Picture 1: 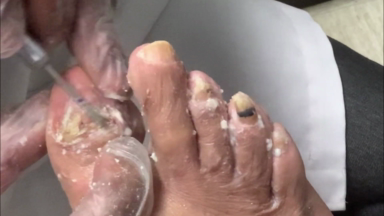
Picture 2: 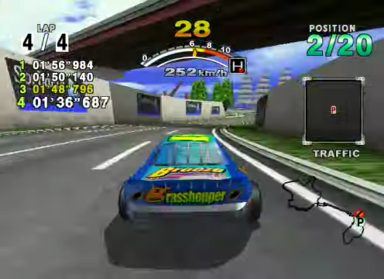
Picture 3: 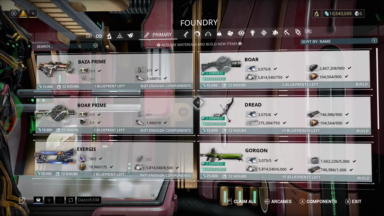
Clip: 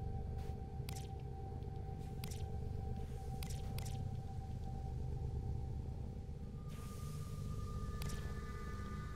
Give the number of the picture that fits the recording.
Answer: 3